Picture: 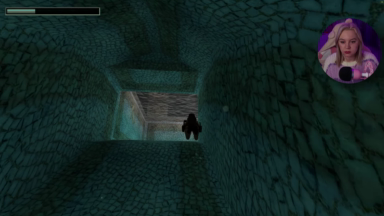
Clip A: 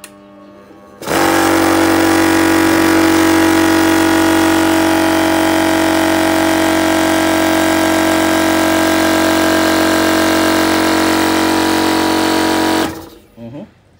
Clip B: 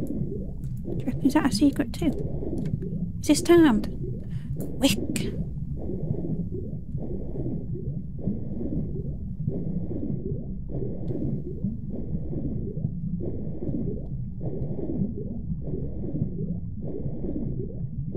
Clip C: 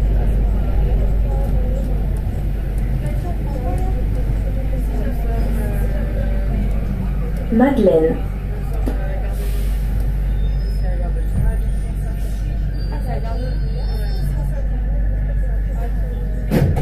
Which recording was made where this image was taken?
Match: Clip B